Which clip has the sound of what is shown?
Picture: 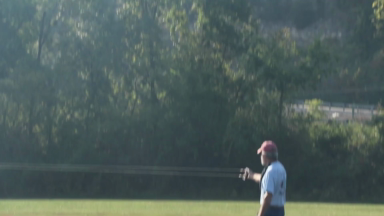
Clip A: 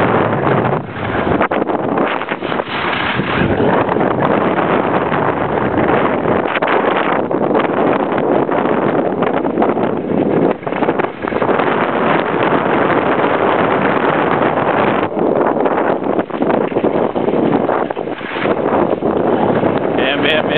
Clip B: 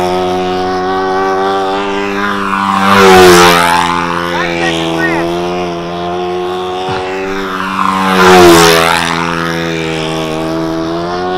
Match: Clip B